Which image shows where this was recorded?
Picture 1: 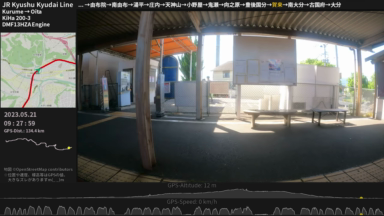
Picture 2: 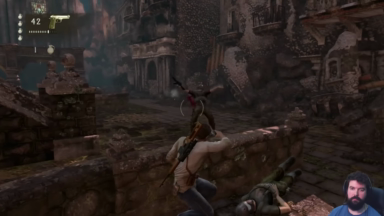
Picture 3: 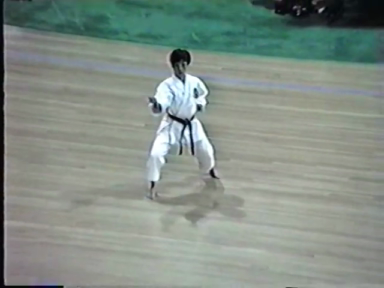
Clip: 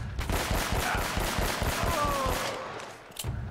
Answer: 2